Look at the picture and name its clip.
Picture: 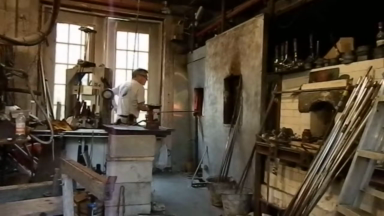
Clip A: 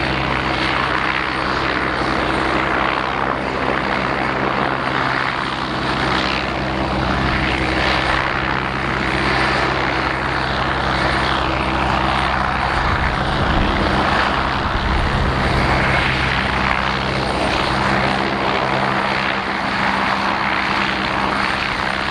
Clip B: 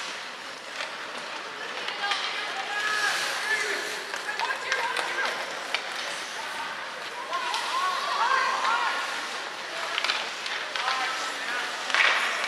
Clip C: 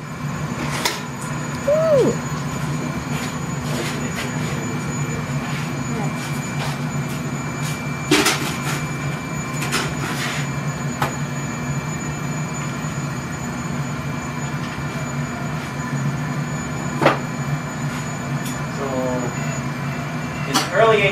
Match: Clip C